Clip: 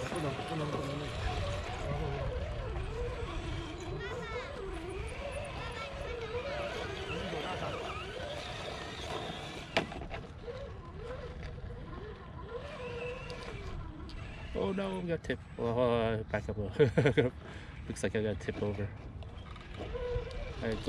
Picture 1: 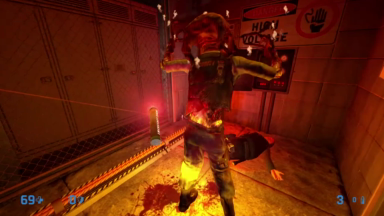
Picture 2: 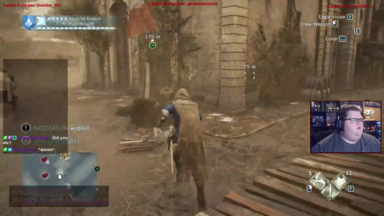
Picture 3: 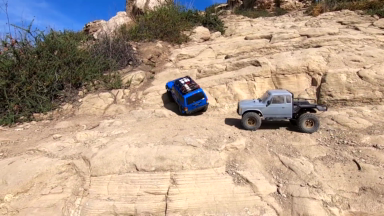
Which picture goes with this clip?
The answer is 3